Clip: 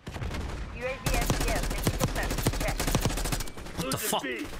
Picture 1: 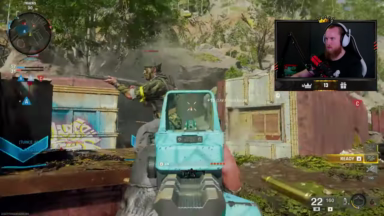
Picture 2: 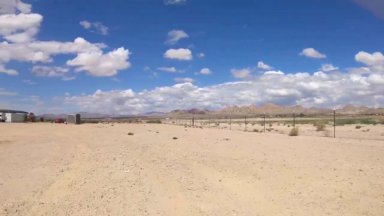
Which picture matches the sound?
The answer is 1